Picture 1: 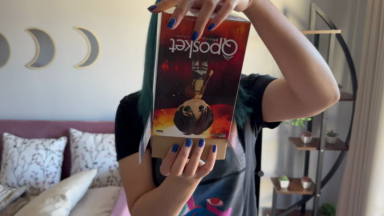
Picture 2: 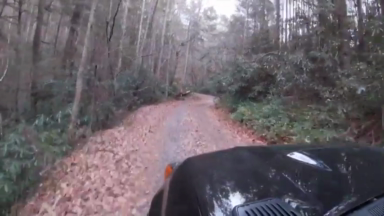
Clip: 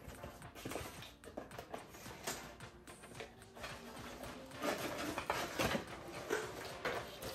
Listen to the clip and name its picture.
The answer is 1